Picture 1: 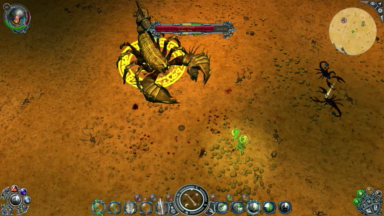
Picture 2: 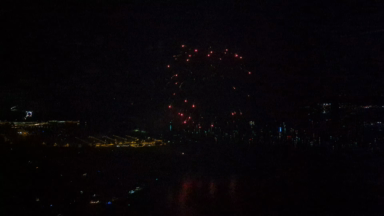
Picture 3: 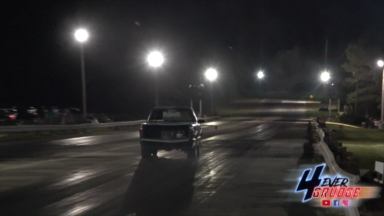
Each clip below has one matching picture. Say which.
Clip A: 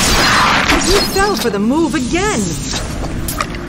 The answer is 1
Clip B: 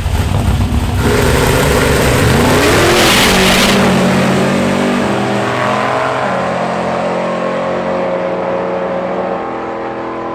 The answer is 3